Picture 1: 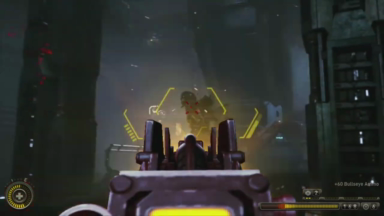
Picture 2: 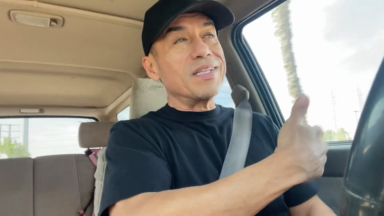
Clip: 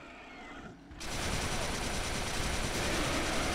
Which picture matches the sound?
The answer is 1